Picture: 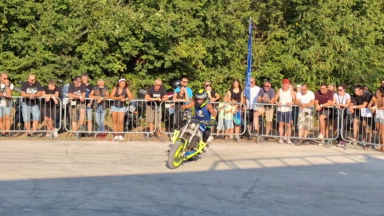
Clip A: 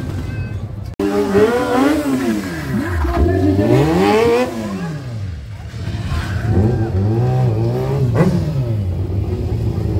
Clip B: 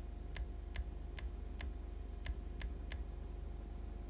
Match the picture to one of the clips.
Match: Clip A